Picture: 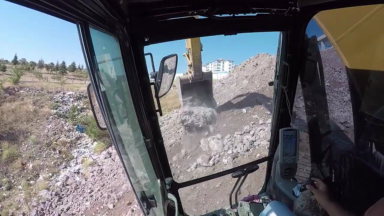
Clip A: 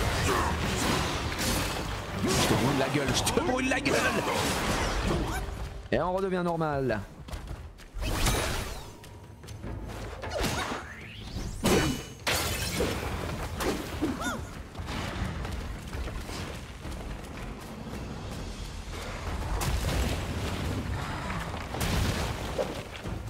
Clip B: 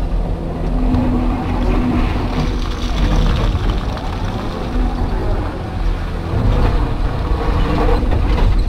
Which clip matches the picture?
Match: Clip B